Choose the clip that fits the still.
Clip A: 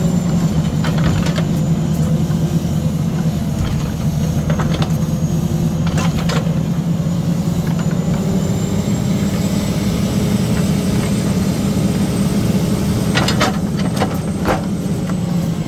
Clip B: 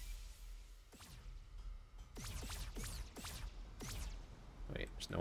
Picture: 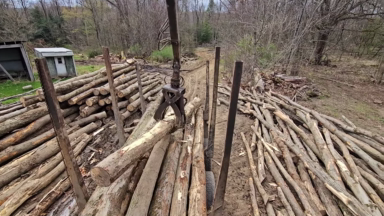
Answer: A